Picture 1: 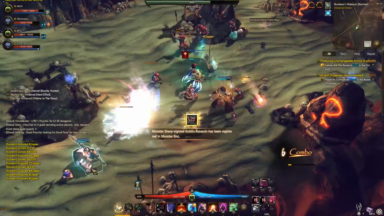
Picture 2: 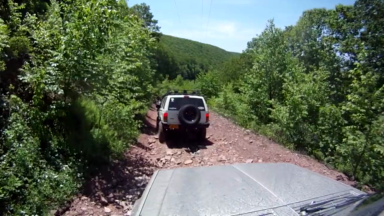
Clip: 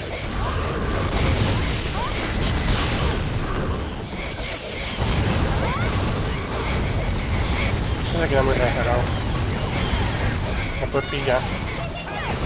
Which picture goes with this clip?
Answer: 1